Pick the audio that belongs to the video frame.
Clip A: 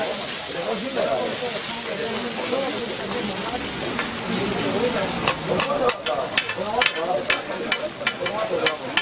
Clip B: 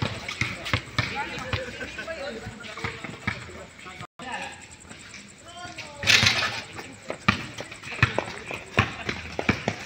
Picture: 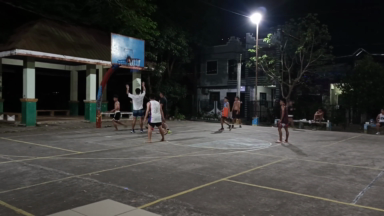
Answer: B